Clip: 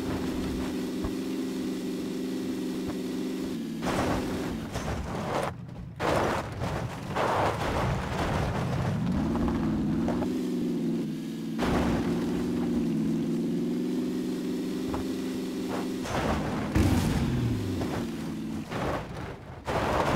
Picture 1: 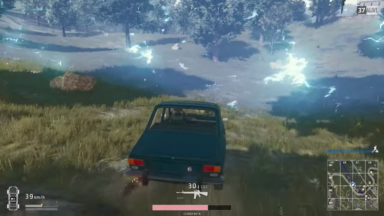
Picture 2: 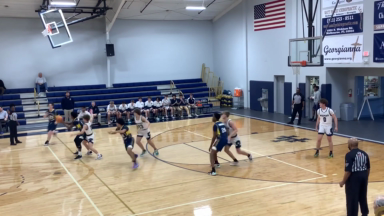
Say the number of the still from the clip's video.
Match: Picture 1